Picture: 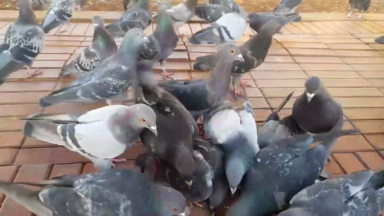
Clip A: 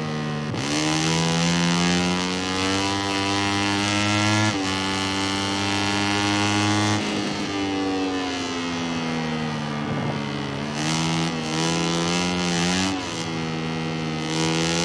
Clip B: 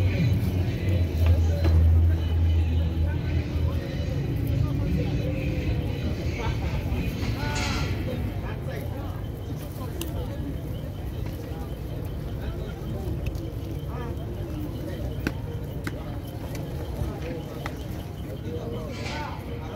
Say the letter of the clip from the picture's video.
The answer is B